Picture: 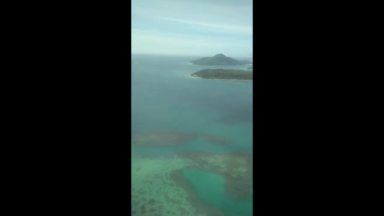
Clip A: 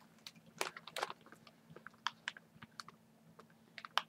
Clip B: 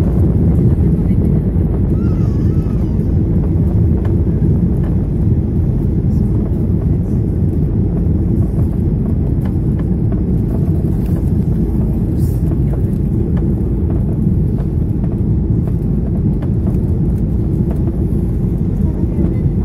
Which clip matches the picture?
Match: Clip B